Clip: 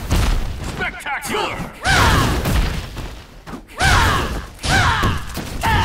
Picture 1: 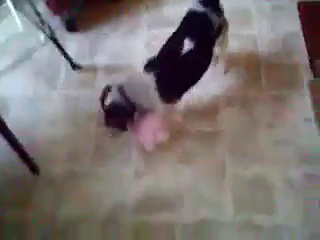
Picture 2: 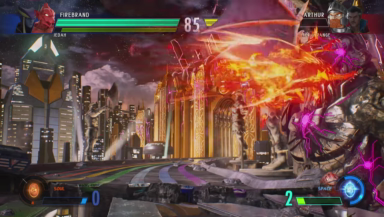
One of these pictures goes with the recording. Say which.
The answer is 2